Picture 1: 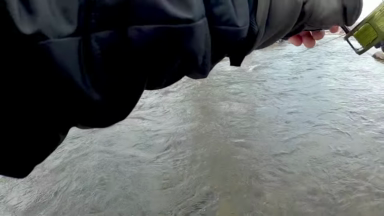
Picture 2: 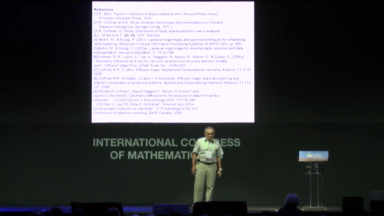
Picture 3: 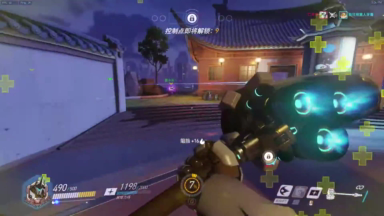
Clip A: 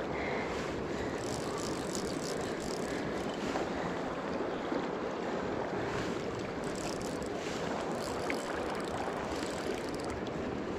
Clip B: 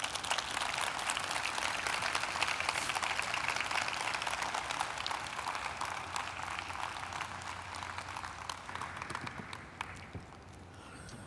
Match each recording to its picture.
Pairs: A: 1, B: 2